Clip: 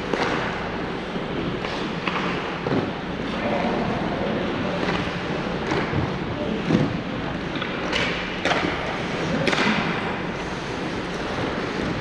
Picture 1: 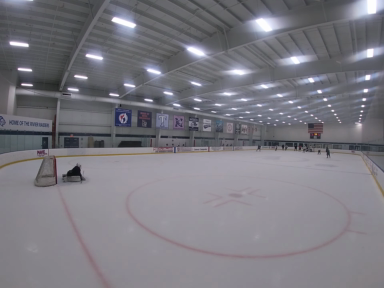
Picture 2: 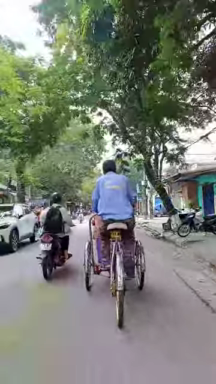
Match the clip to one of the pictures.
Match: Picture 1